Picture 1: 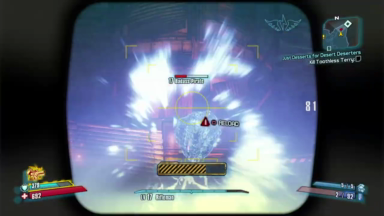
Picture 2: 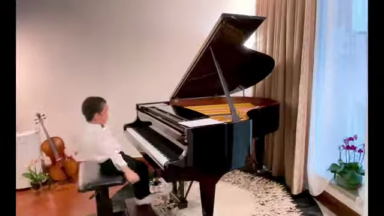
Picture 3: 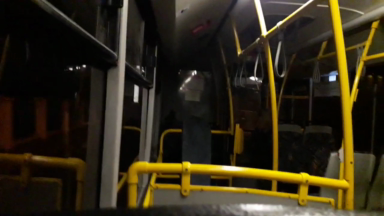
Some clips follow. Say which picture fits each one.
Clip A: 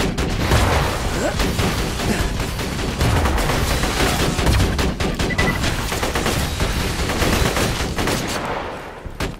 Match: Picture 1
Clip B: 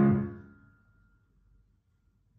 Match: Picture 2